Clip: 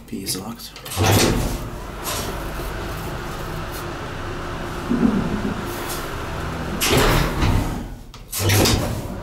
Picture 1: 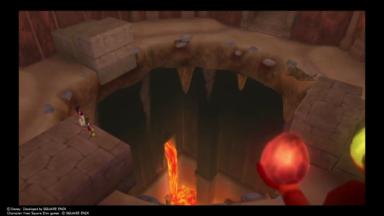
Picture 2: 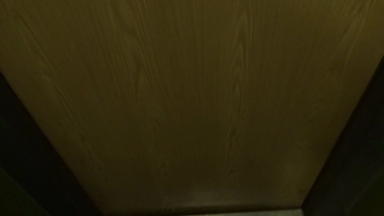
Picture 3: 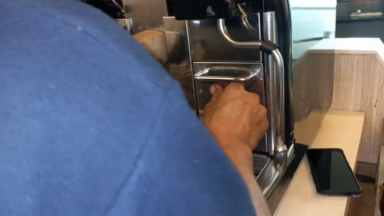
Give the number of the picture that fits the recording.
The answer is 2